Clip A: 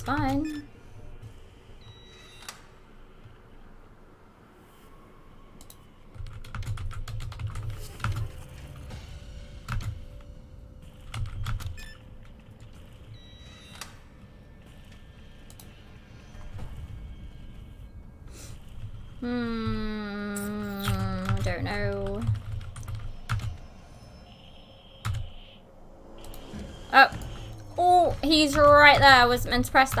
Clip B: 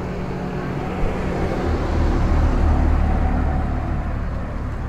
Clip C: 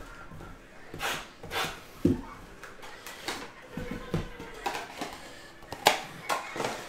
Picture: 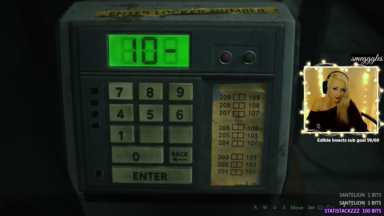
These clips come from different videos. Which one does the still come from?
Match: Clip A